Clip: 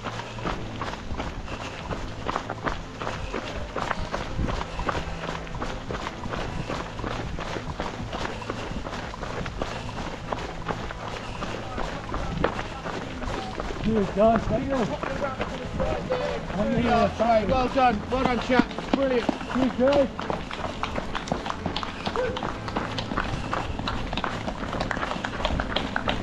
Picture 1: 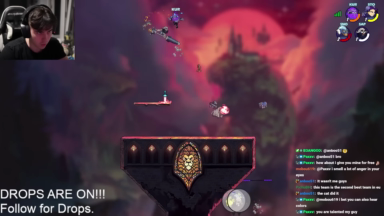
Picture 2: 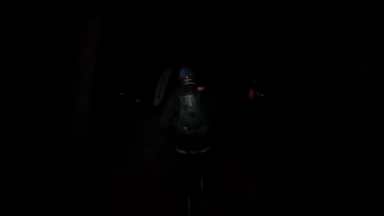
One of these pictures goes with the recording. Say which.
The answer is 2